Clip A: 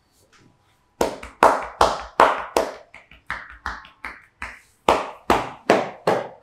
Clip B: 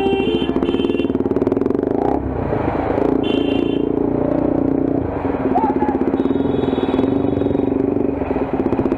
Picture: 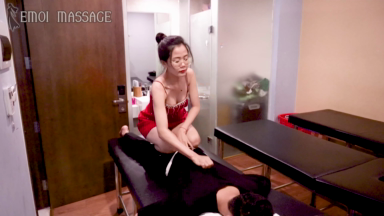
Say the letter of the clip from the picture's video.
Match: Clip A